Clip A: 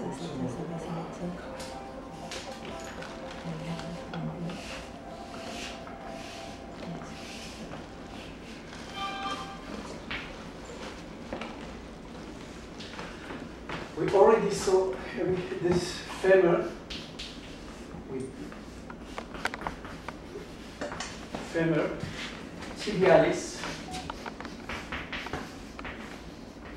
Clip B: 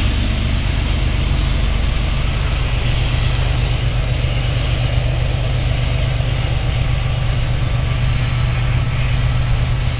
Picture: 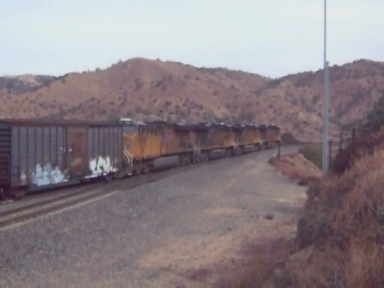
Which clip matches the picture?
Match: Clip B